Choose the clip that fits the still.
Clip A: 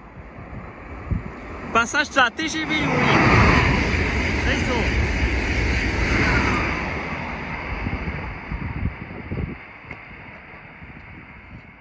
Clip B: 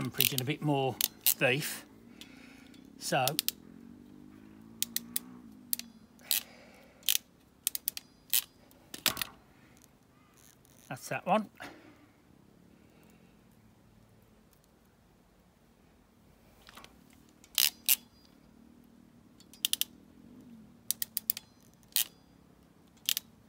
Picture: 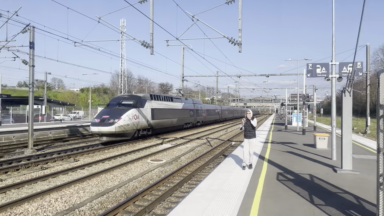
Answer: A